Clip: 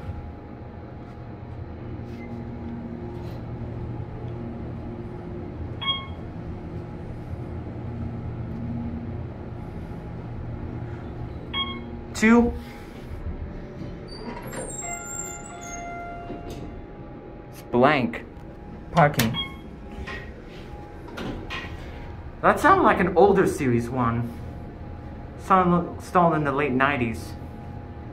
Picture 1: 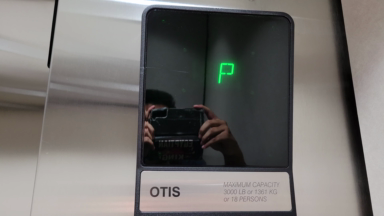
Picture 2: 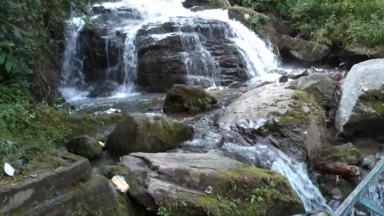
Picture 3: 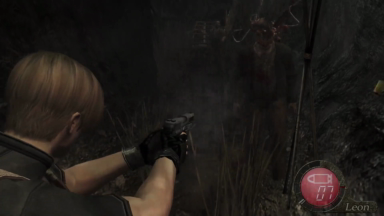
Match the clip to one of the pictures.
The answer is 1